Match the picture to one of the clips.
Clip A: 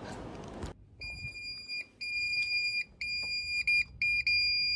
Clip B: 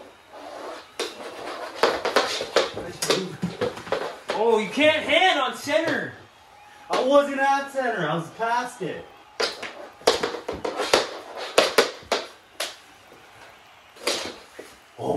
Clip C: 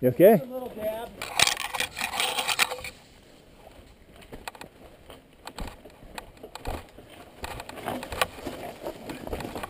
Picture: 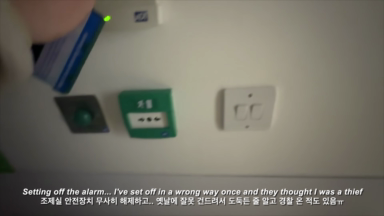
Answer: A